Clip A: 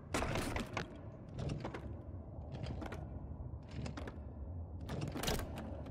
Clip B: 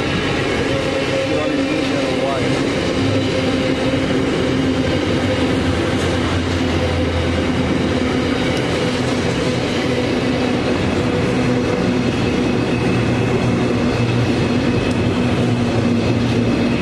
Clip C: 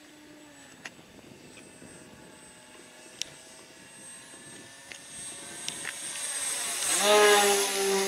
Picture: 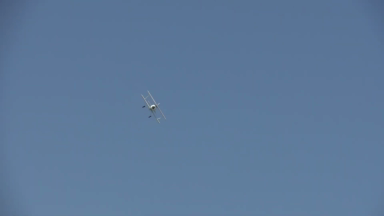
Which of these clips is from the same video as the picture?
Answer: C